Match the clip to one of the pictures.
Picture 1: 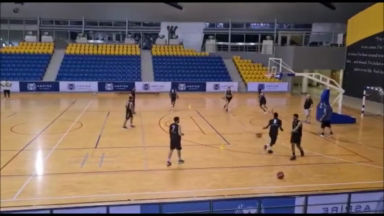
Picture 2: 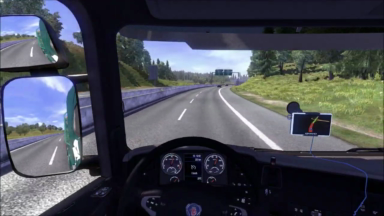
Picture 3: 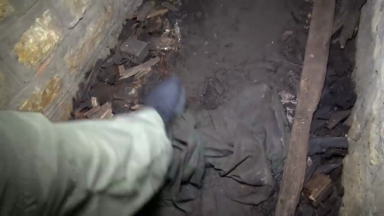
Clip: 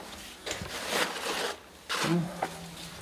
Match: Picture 3